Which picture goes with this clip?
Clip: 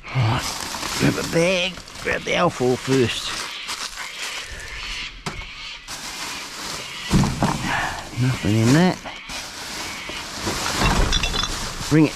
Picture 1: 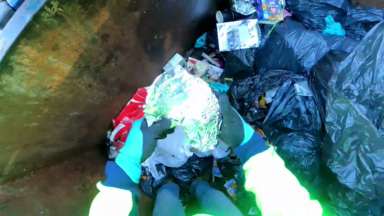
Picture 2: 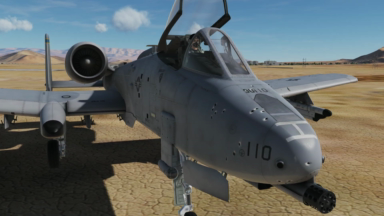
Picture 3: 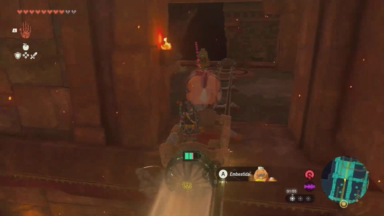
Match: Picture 1